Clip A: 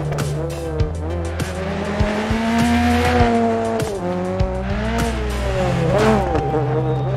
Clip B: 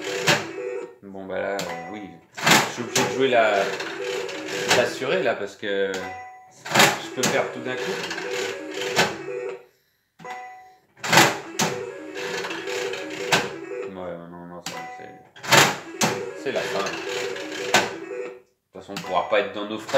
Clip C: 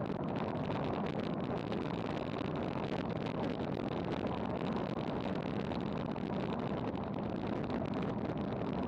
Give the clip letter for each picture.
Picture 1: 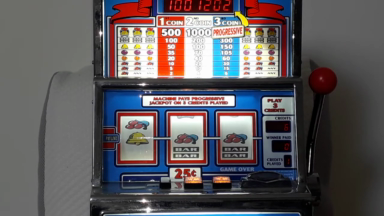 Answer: B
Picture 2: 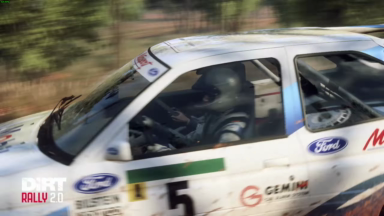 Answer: A